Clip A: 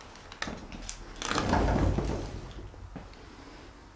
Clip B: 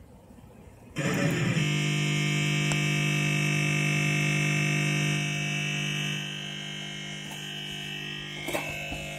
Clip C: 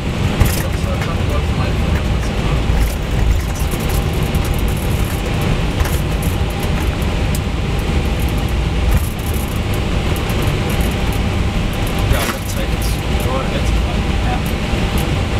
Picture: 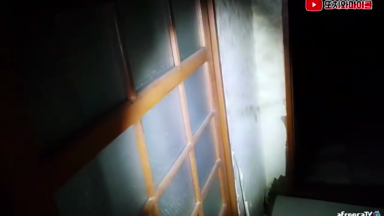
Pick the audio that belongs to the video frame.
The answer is A